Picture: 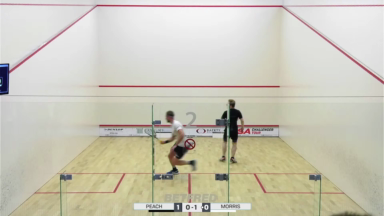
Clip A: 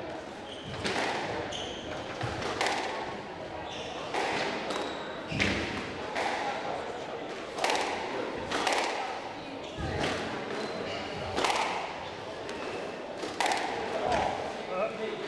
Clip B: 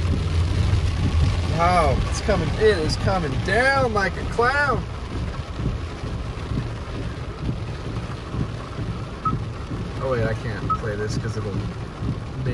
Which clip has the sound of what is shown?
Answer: A